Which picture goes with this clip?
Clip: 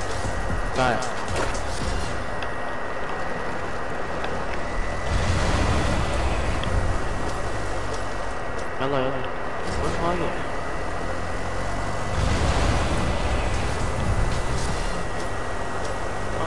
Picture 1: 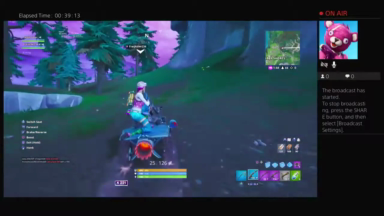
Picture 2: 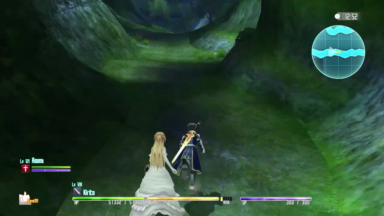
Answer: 1